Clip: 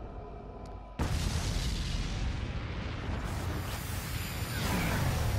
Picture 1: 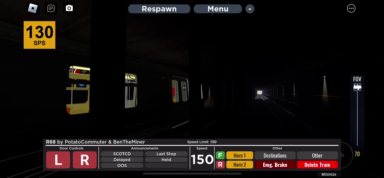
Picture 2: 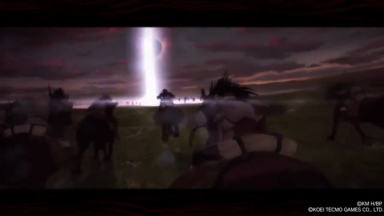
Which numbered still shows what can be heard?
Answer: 2